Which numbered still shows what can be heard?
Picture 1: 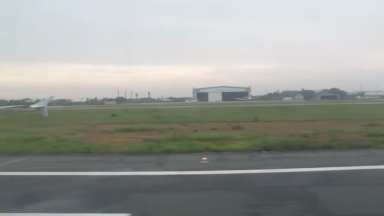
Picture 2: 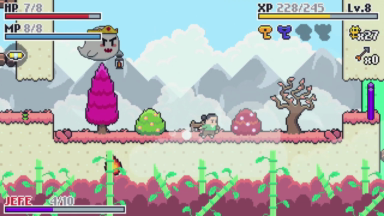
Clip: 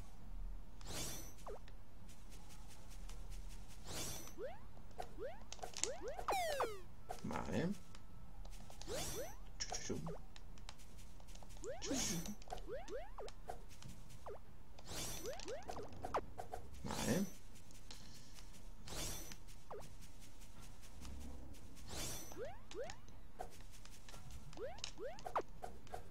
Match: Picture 2